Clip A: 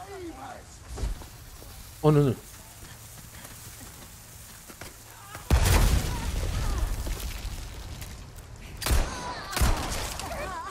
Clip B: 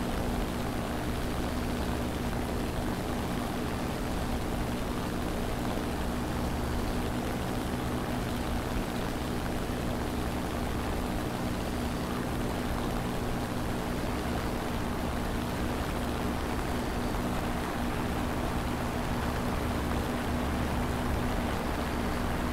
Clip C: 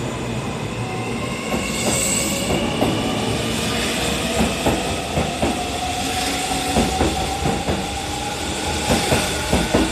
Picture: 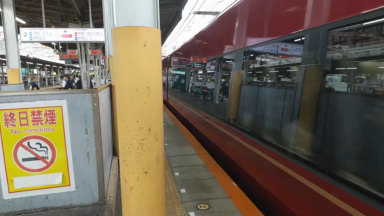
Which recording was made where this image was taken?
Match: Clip C